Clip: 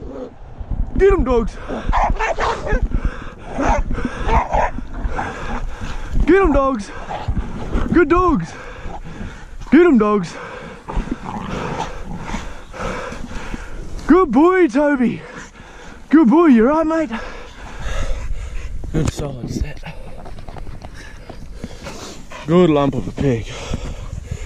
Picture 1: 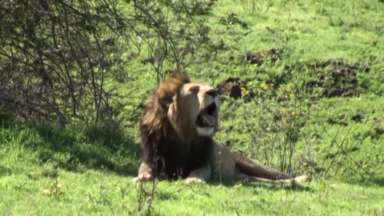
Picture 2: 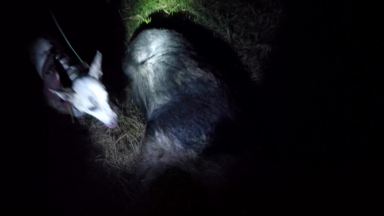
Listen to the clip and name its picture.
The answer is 2